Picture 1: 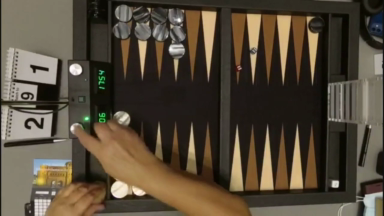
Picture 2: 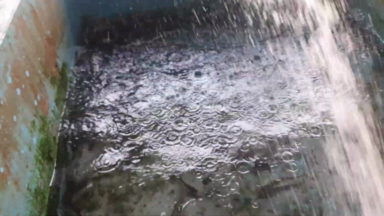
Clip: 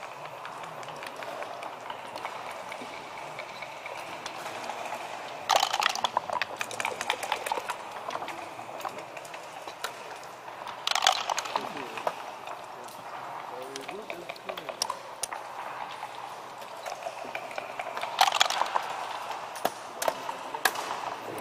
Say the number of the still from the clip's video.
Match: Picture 1